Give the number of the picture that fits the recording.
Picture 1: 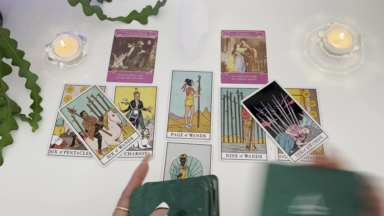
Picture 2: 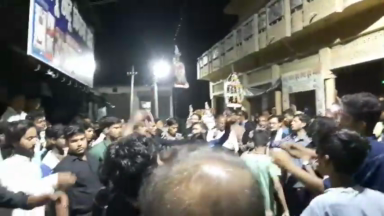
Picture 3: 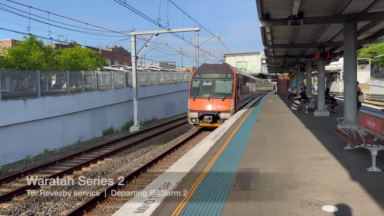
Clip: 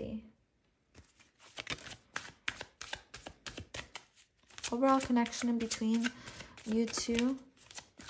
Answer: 1